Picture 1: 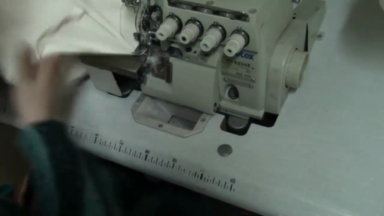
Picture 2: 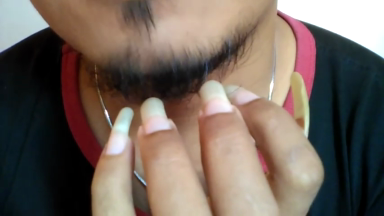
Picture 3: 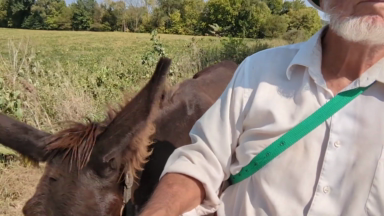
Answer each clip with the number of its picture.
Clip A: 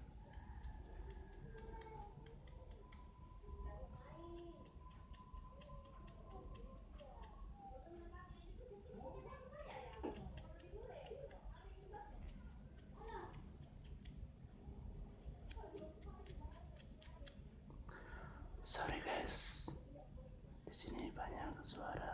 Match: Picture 2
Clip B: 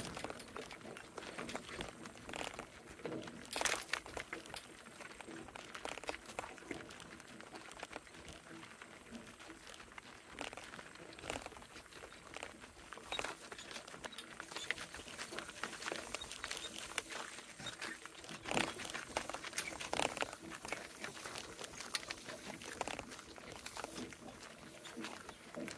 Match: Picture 3